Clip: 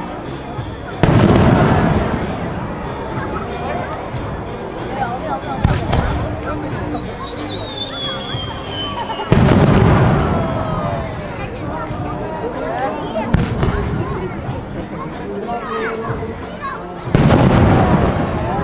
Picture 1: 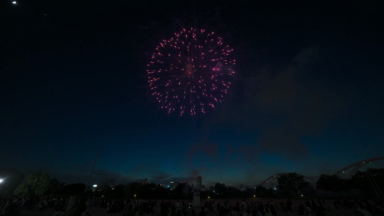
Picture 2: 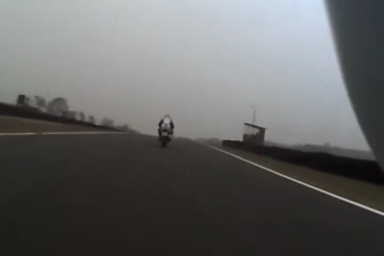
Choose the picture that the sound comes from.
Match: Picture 1